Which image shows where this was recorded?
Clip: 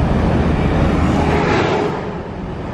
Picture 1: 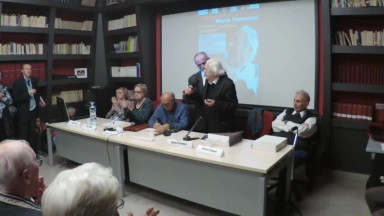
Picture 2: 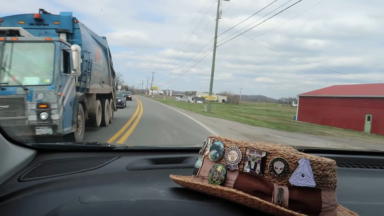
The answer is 2